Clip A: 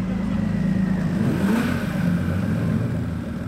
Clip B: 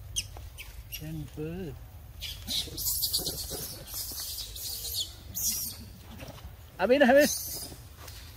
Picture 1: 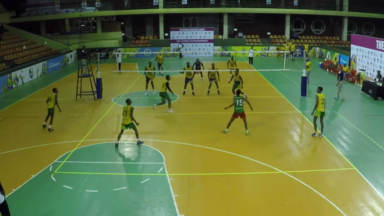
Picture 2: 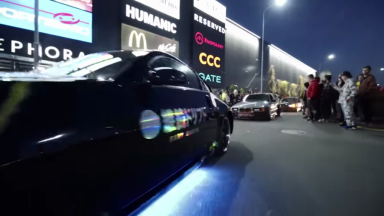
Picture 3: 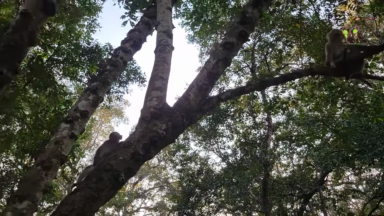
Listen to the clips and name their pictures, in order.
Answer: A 2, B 3